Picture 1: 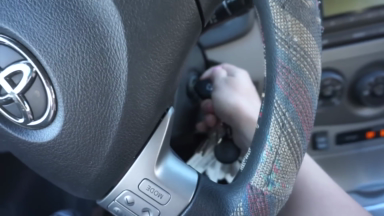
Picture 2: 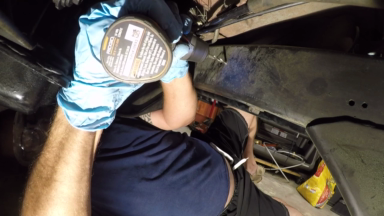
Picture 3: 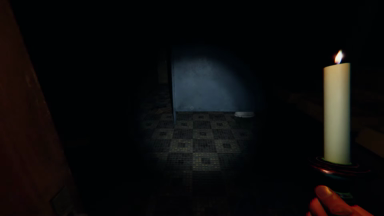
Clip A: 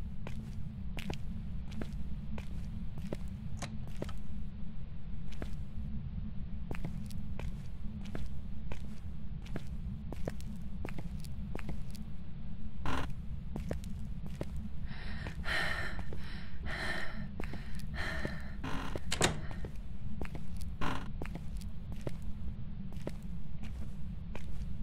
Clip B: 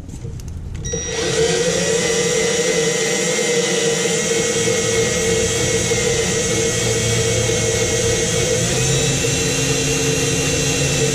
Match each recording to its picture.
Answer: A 3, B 2